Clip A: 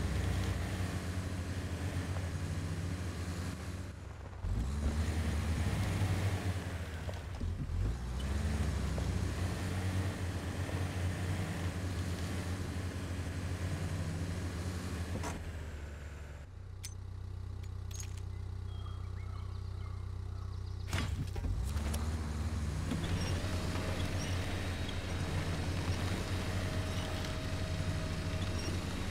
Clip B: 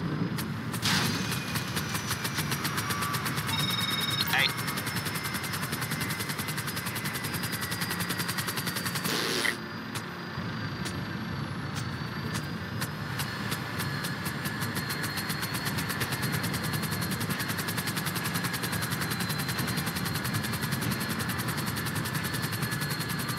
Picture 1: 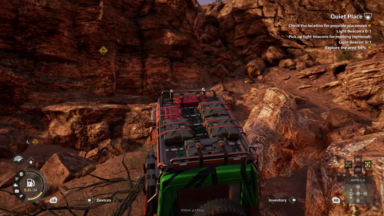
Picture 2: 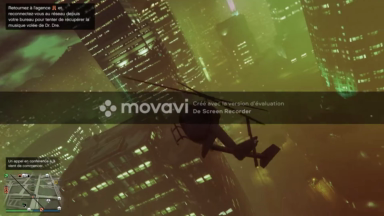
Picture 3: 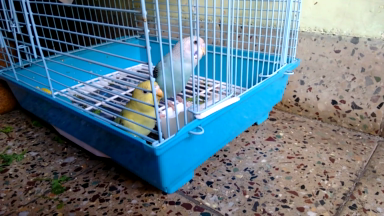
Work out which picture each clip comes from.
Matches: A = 1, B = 2